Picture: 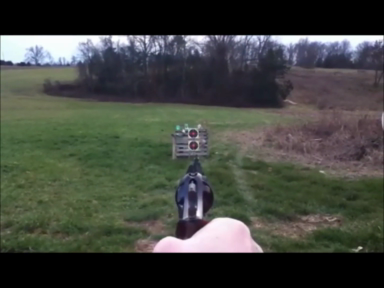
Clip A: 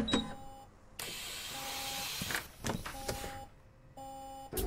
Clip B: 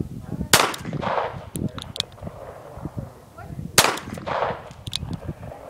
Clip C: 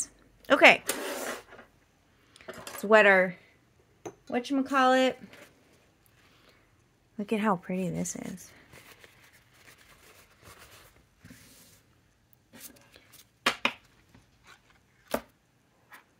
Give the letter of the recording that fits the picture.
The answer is B